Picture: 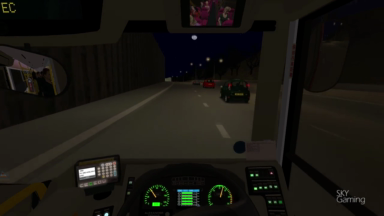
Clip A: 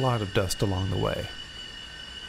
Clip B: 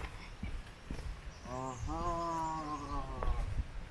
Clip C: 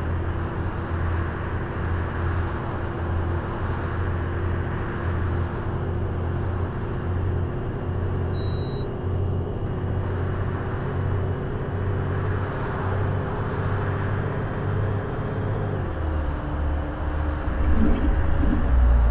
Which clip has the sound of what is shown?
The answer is C